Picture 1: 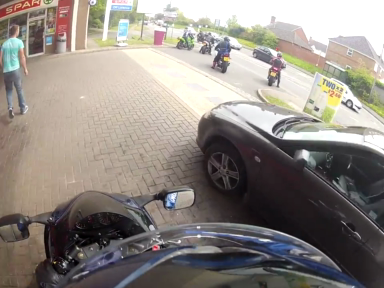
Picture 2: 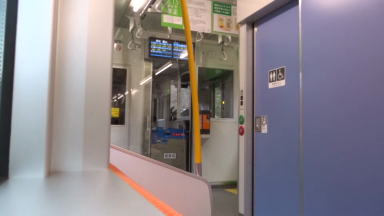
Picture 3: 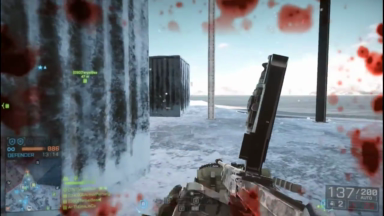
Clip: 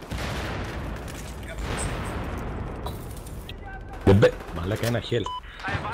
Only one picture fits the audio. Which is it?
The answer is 3